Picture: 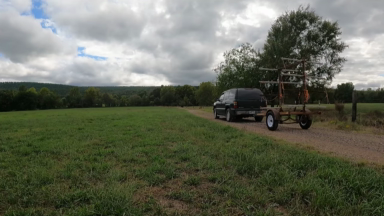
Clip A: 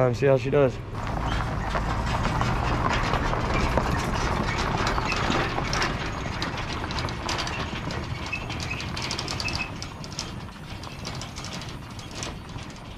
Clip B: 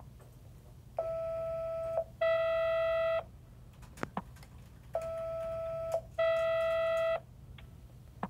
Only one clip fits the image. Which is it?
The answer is A